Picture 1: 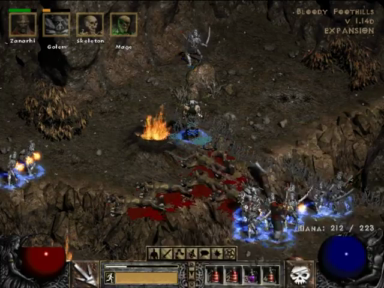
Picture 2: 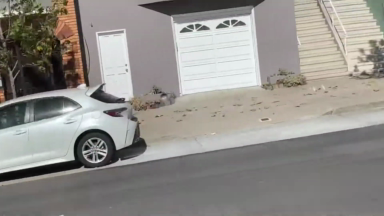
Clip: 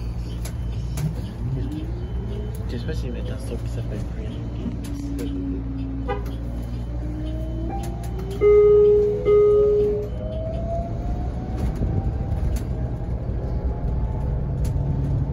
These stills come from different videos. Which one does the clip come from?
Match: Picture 2